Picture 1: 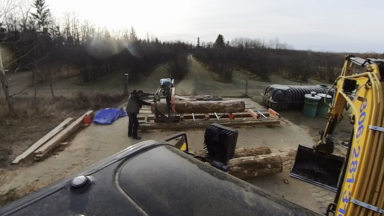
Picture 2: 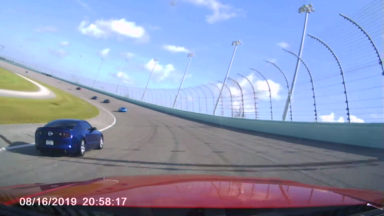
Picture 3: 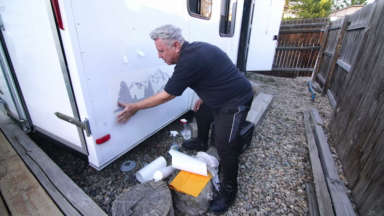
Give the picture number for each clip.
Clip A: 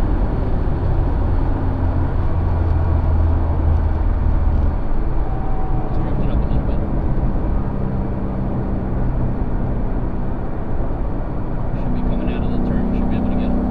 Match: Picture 2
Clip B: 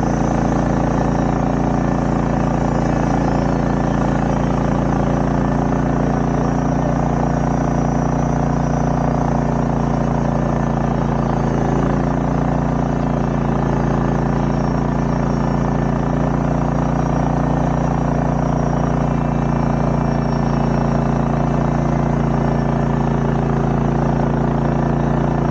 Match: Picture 1